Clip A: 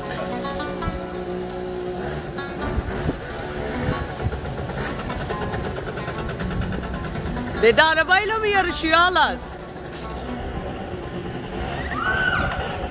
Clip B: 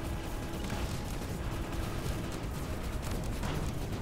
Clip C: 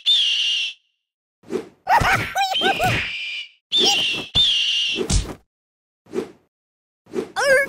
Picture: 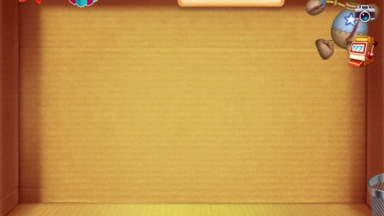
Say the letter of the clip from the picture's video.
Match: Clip C